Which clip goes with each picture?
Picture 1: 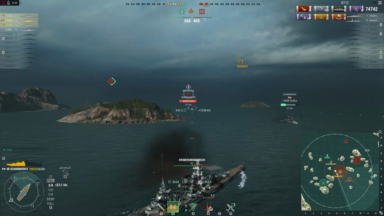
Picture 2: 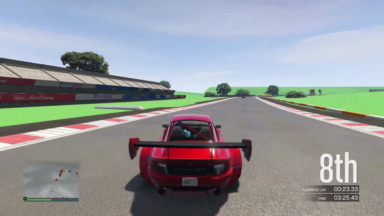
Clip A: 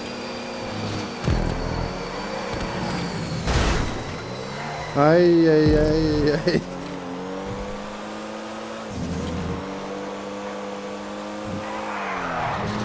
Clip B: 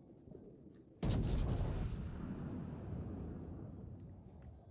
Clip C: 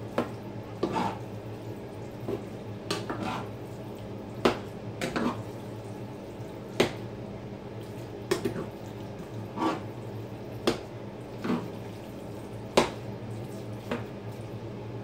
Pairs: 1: B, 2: A